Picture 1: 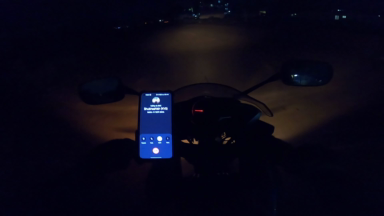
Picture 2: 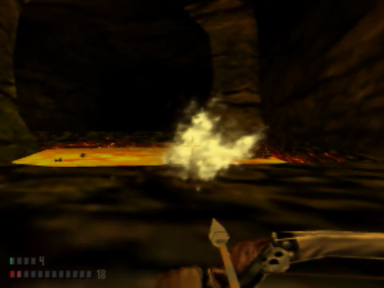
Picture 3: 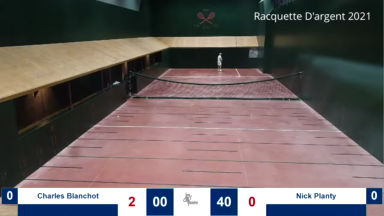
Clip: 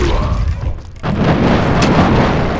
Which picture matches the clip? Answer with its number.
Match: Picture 2